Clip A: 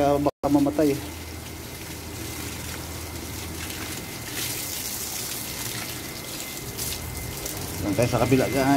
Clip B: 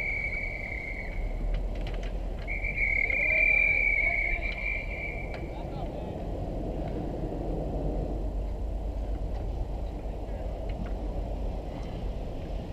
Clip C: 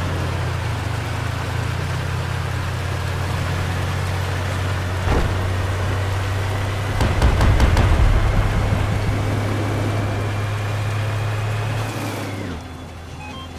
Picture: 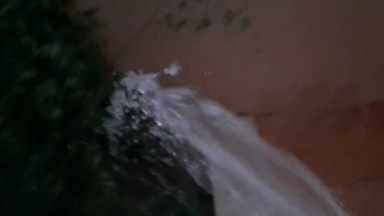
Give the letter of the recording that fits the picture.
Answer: A